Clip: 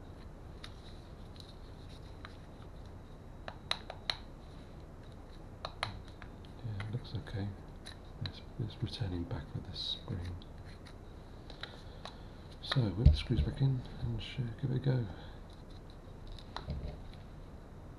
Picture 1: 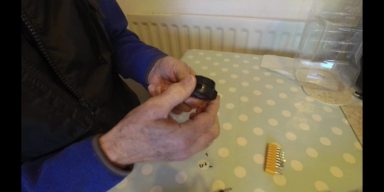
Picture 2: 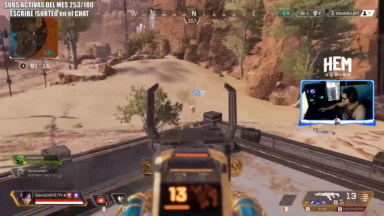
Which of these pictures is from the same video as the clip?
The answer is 1